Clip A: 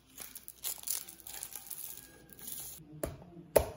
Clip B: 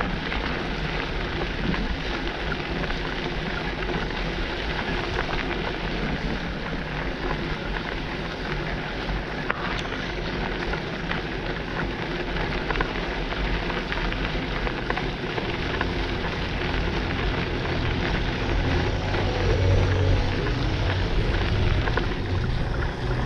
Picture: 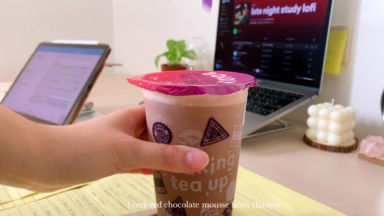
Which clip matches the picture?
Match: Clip A